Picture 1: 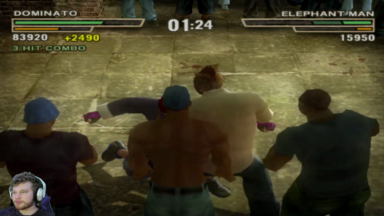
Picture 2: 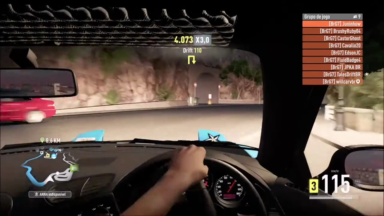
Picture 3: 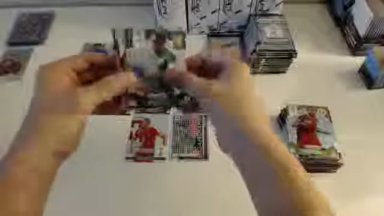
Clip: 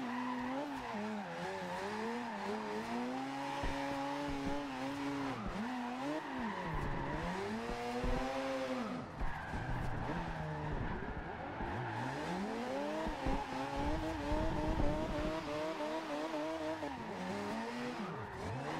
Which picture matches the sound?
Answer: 2